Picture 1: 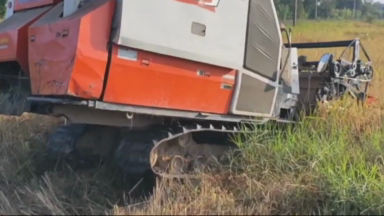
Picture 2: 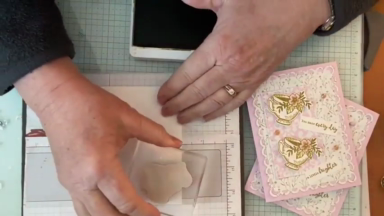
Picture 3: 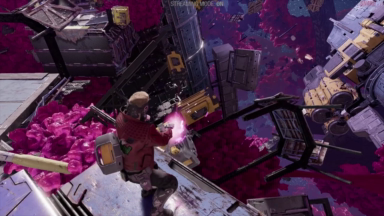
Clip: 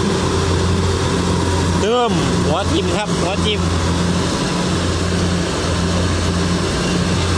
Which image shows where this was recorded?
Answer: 1